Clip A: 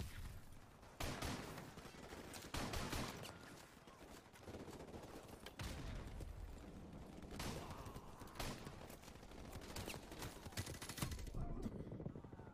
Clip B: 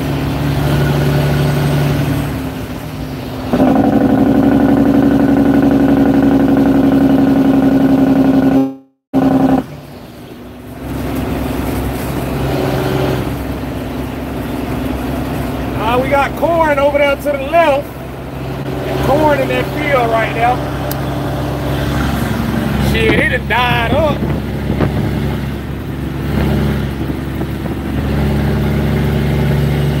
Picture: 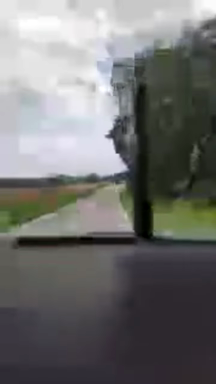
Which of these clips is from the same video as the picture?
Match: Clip B